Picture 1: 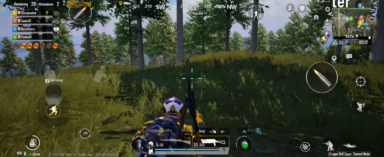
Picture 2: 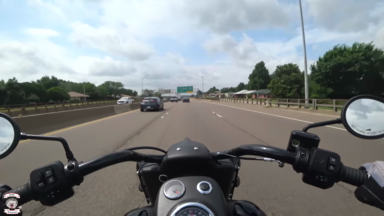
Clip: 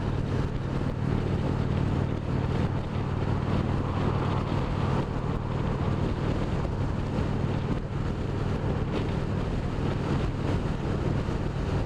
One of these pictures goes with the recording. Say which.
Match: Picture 2